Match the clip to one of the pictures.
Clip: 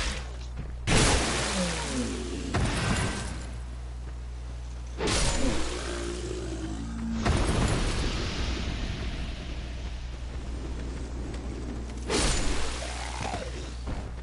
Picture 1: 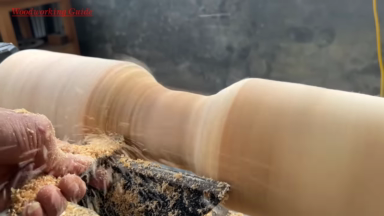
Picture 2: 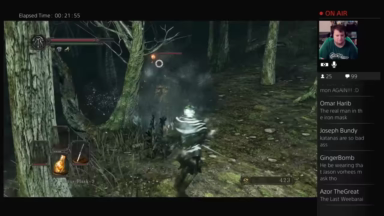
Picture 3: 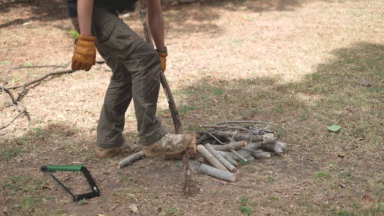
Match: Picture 2